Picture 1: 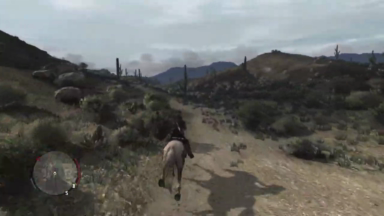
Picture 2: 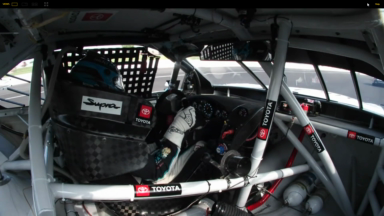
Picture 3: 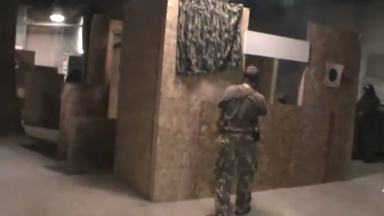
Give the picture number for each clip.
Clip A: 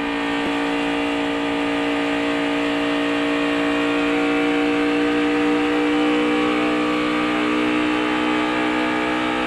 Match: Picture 2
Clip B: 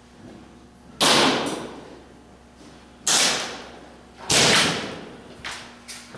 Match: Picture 3